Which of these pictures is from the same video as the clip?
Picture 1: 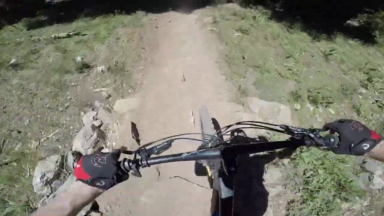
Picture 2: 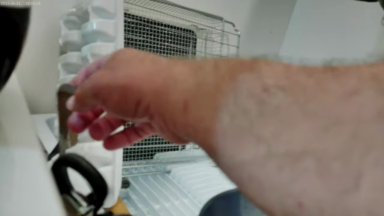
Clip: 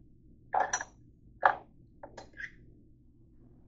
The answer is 2